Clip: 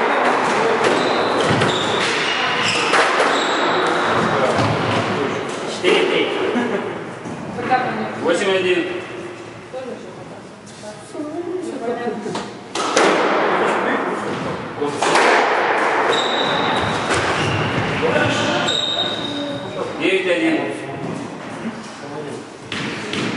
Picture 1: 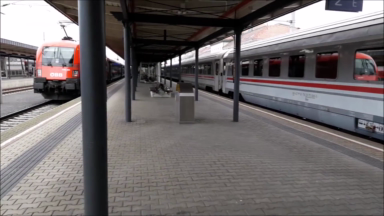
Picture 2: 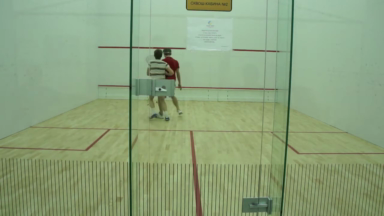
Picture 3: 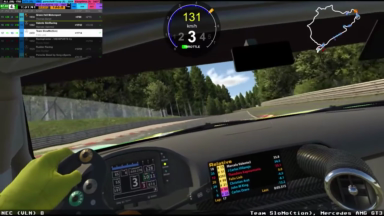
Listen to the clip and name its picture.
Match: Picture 2